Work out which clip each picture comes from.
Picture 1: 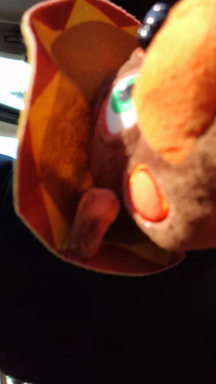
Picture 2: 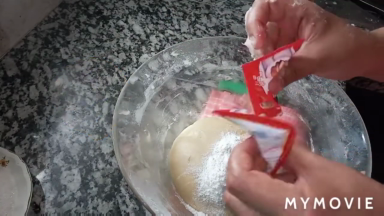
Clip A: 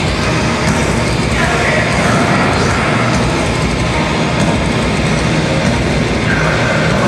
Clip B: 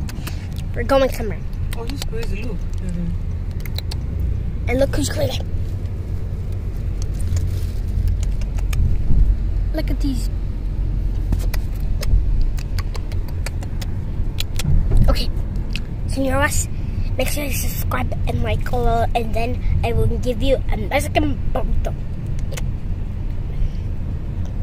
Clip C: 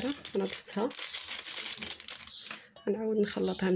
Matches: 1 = B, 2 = C